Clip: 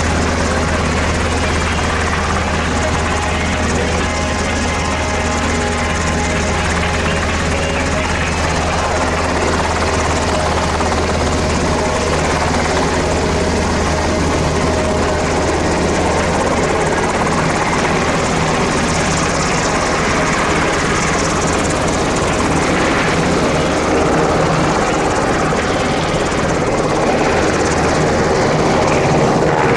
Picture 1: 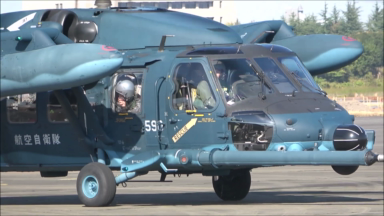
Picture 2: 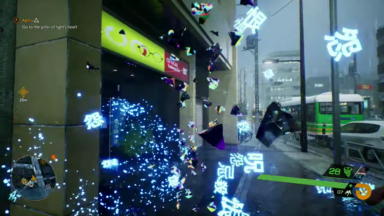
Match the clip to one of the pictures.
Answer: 1